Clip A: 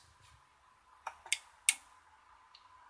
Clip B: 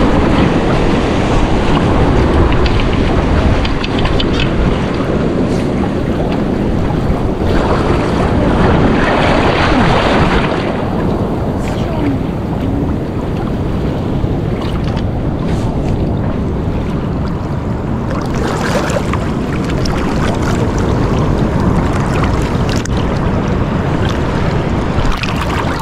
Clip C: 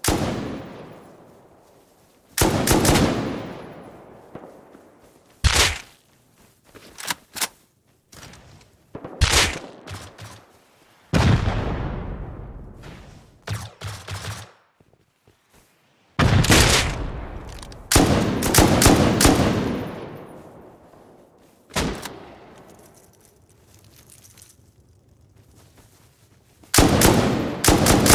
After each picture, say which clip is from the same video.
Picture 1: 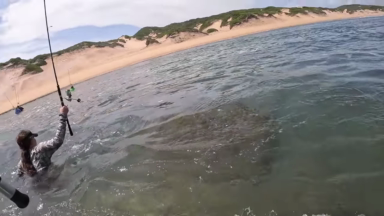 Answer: B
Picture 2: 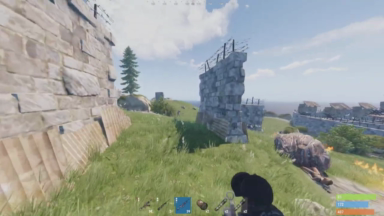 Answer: C